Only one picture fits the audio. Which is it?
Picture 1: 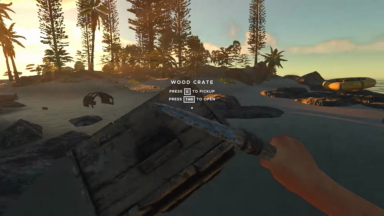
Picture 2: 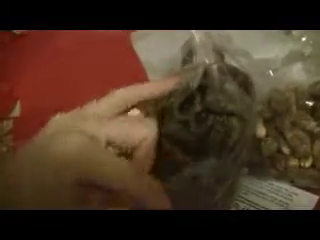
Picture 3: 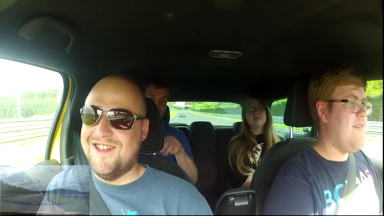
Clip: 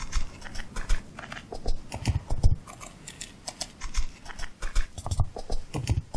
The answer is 1